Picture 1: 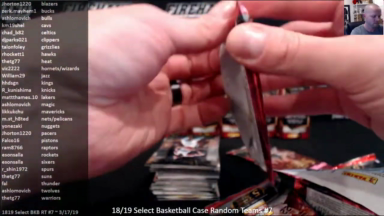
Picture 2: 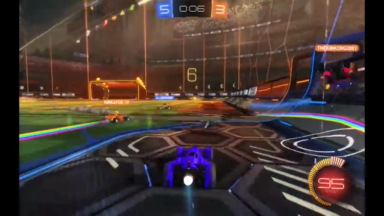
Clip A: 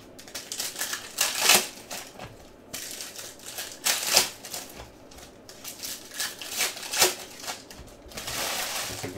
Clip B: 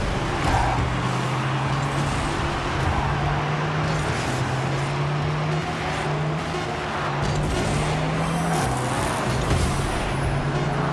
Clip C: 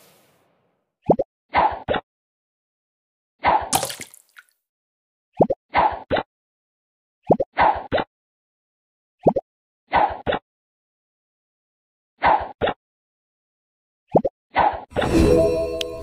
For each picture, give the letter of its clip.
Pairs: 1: A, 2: B